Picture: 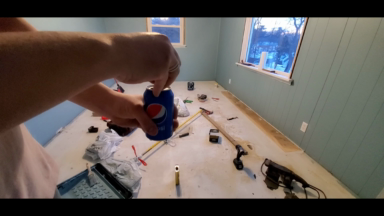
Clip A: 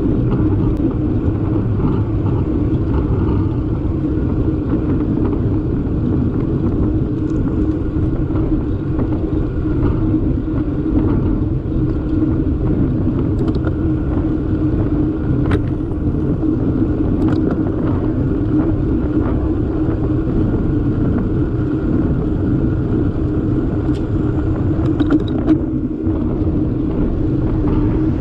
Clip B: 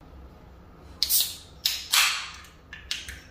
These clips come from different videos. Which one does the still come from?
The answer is B